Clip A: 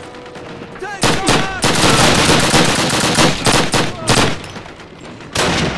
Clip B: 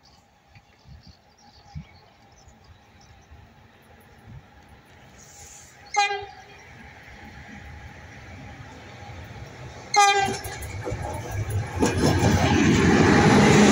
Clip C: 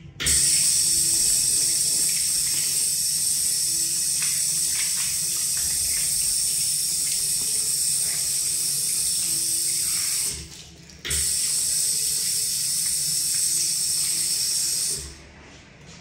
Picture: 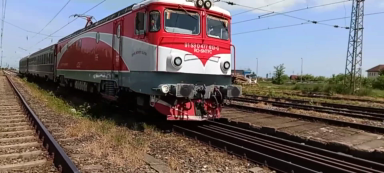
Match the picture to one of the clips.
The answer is B